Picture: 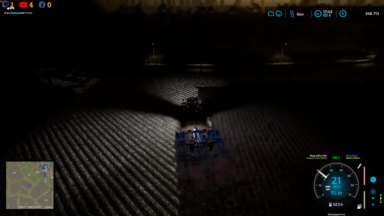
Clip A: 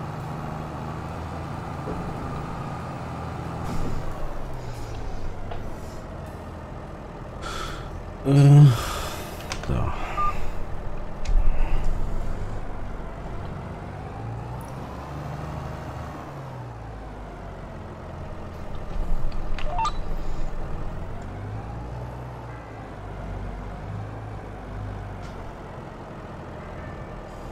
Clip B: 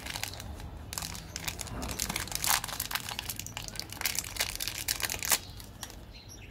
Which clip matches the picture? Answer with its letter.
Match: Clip A